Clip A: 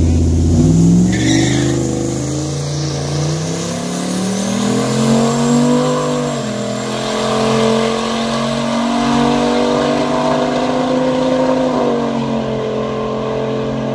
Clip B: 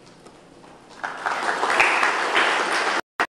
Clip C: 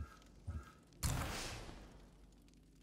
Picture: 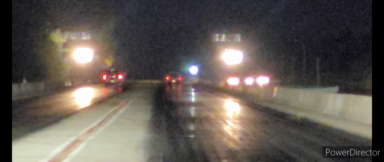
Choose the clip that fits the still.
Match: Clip A